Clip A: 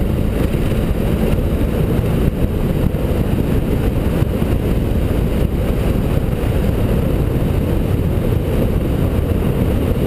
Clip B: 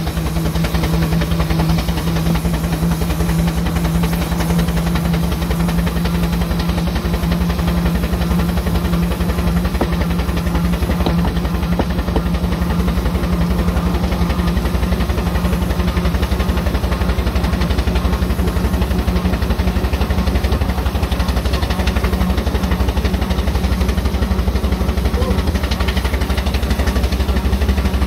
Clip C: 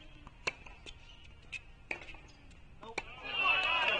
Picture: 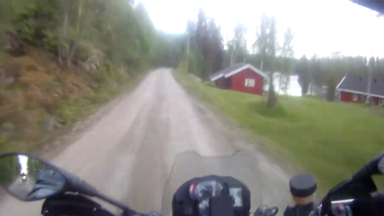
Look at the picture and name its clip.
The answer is A